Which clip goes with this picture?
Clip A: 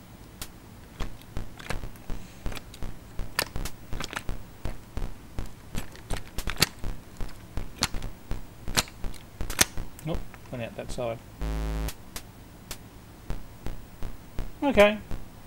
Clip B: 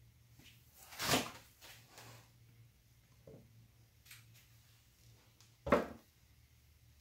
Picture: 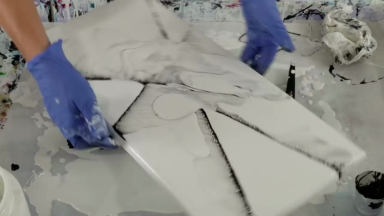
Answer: B